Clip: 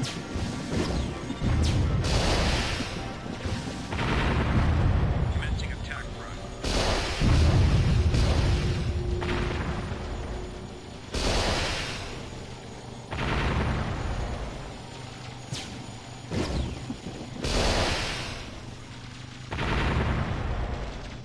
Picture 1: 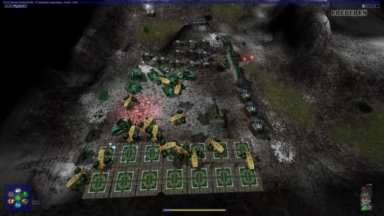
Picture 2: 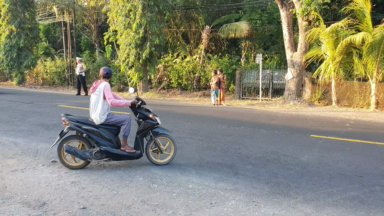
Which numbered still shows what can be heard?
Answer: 1